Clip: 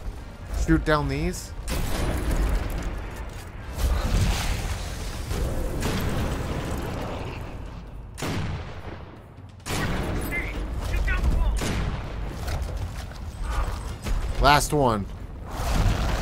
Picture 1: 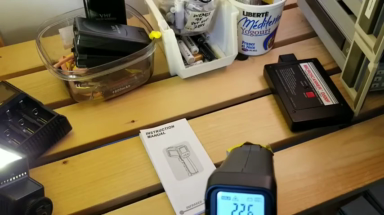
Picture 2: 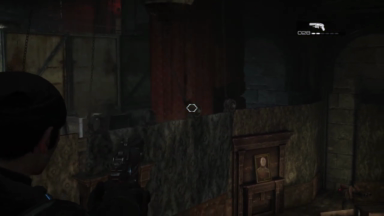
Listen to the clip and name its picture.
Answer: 2